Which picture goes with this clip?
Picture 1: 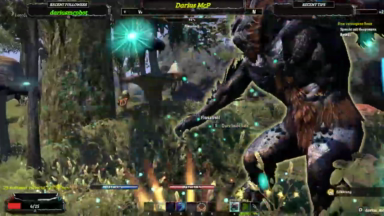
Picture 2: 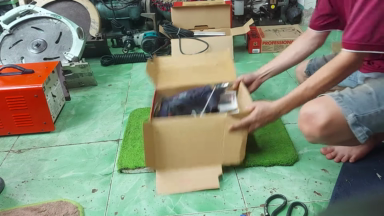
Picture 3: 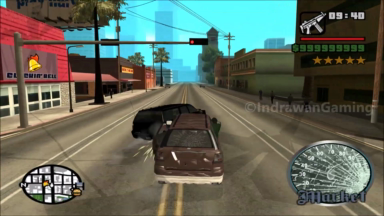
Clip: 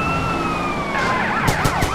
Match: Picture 3